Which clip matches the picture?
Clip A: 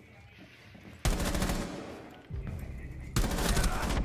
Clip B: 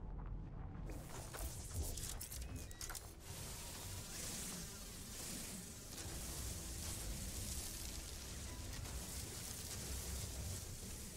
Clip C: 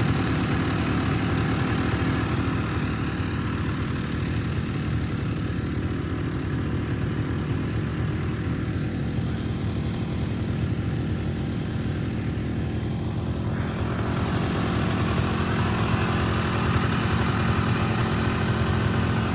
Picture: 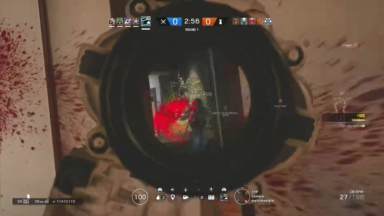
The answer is A